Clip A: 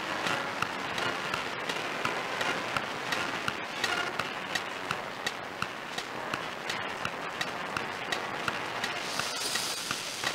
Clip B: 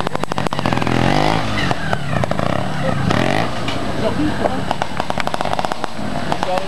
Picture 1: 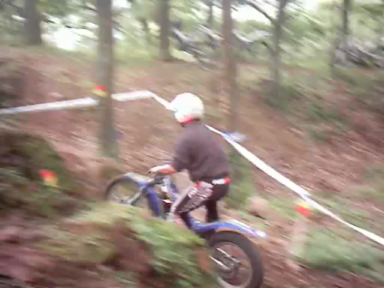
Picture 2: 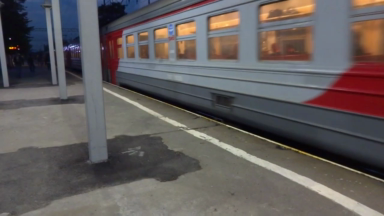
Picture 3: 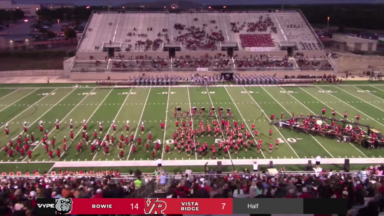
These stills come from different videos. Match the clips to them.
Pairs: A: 3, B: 1